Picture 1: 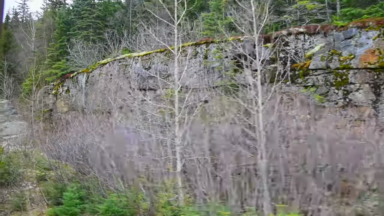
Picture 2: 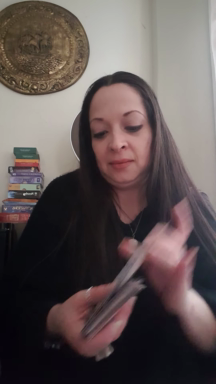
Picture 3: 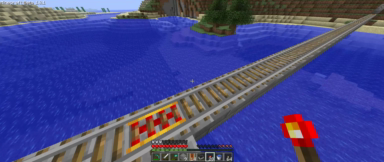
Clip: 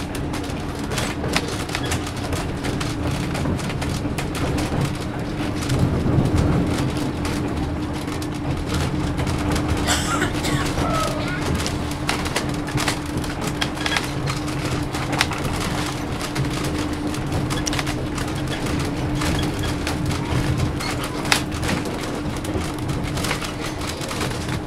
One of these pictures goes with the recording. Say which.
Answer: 1